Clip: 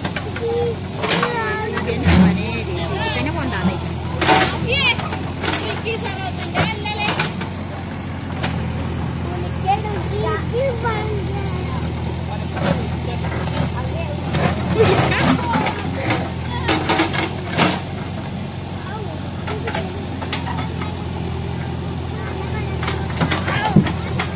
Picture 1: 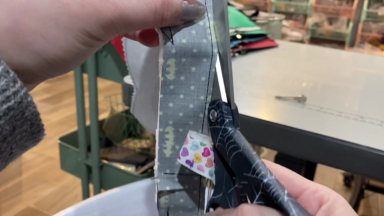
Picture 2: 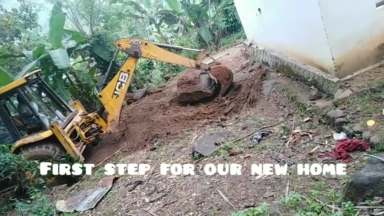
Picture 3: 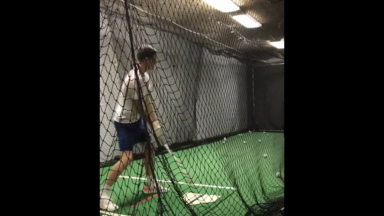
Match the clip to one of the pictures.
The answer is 2